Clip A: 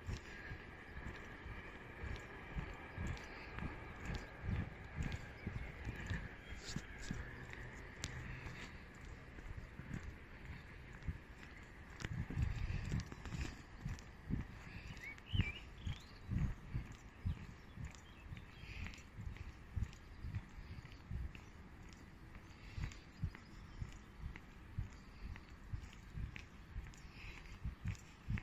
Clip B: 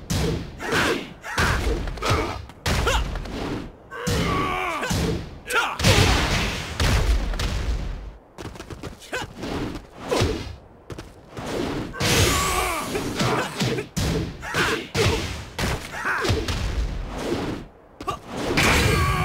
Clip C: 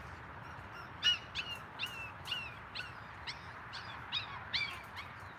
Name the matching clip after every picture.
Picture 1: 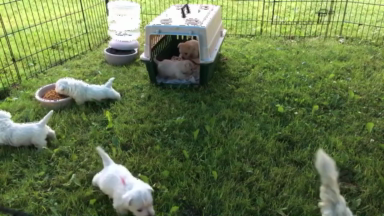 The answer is C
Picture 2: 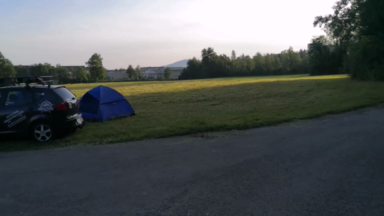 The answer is A